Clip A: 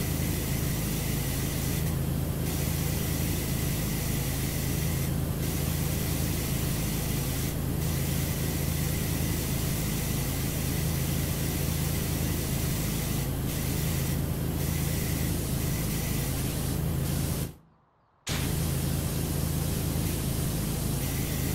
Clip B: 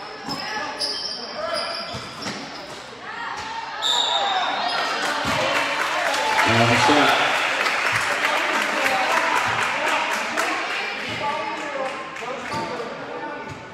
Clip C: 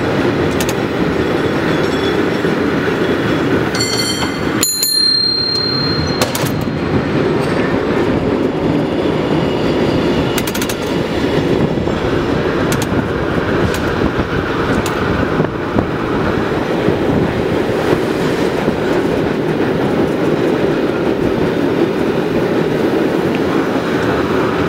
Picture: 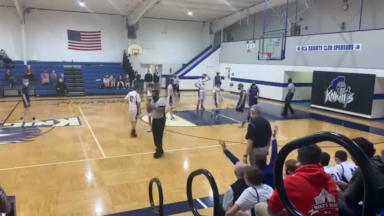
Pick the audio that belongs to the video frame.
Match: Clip B